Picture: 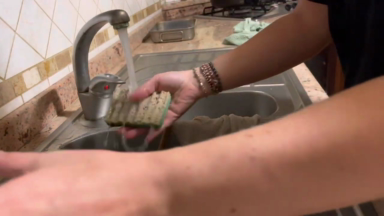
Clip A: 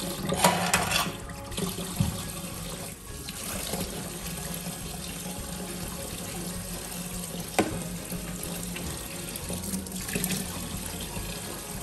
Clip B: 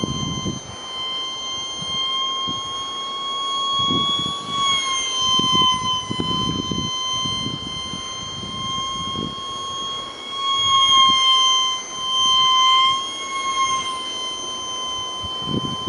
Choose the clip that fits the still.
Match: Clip A